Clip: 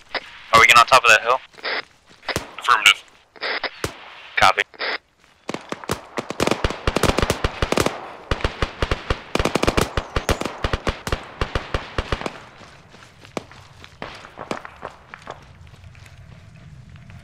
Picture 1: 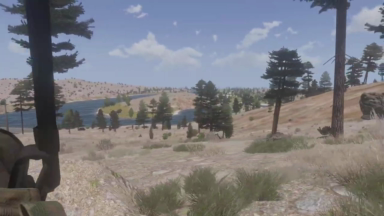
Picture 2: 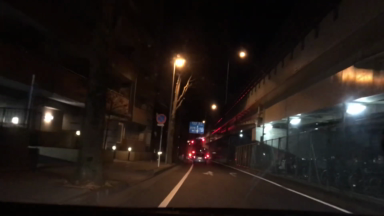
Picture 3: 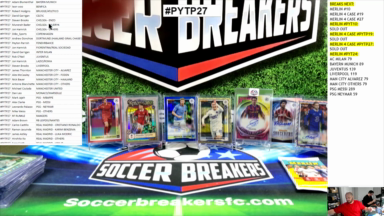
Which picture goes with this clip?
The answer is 1